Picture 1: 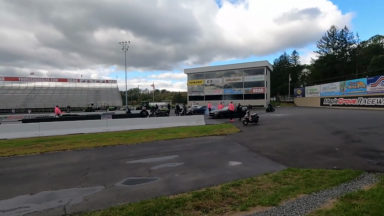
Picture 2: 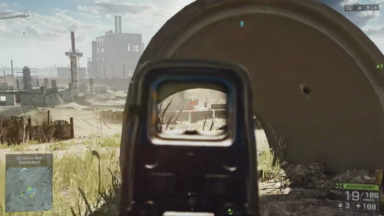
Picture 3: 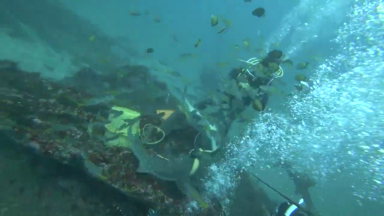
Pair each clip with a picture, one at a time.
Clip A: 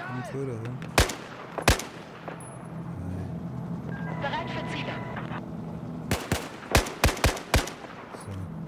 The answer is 2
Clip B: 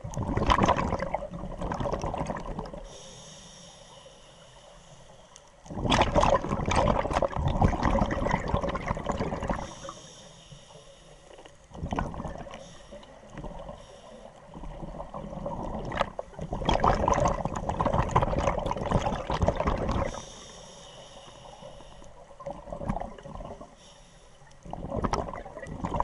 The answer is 3